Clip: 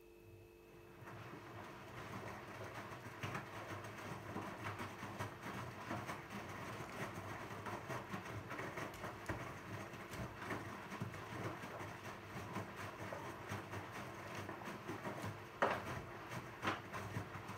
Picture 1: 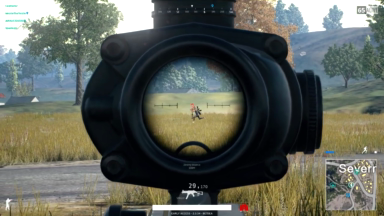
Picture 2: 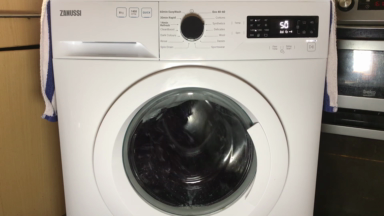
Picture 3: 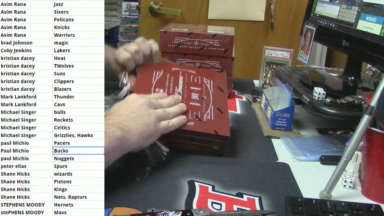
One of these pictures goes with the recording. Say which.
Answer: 2